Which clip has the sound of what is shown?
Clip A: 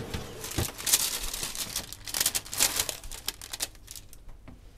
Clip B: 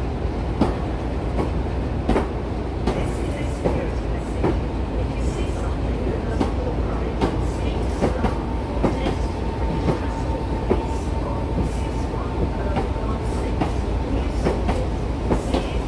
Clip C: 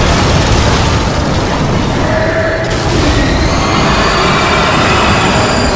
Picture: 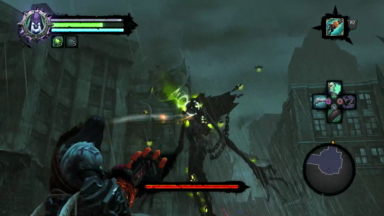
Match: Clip C